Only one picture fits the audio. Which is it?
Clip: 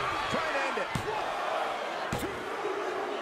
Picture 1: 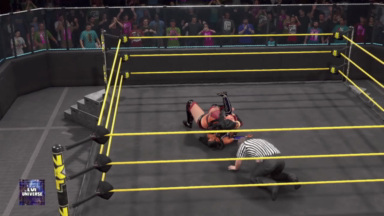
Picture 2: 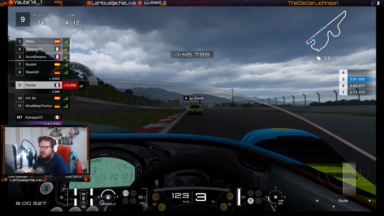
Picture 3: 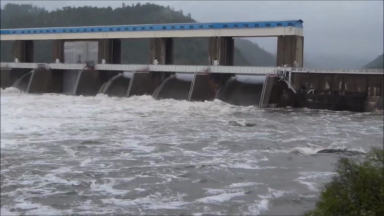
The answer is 1